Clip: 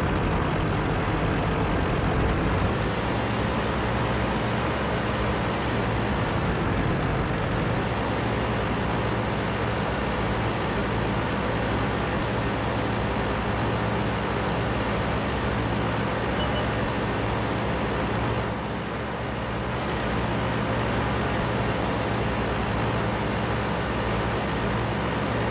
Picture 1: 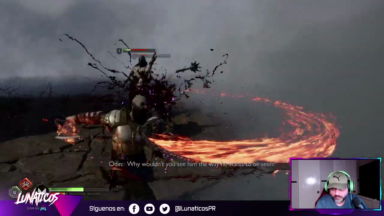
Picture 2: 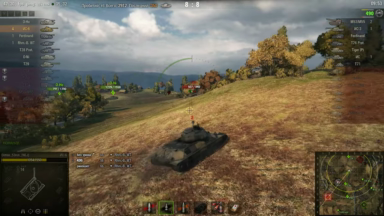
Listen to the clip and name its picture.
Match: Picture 2